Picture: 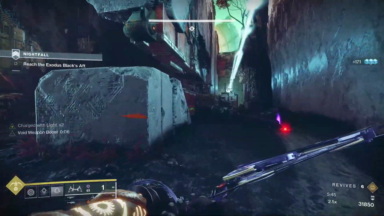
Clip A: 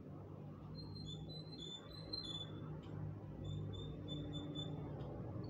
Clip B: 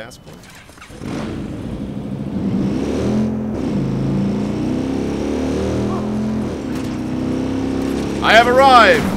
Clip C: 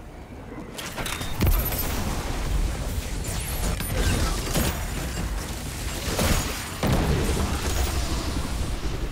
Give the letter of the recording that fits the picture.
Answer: C